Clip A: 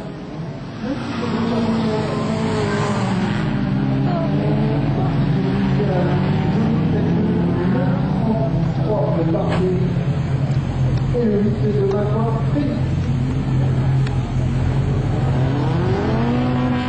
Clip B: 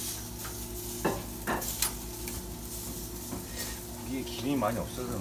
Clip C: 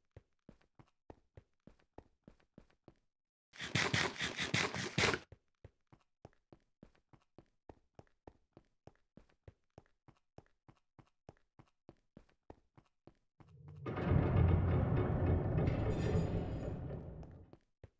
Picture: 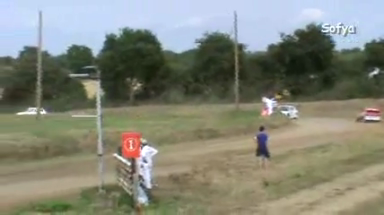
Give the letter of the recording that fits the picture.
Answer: A